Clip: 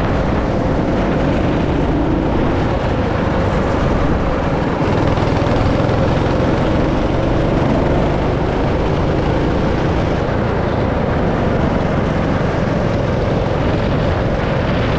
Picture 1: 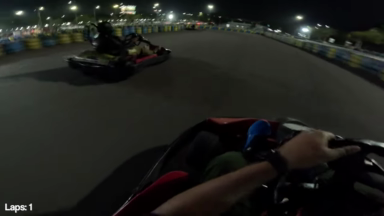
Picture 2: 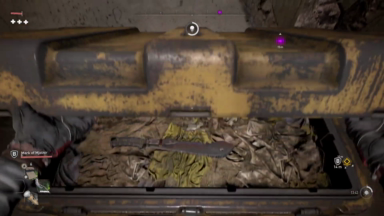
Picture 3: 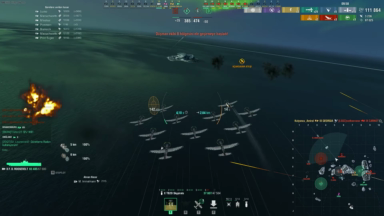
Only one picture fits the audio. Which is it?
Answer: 1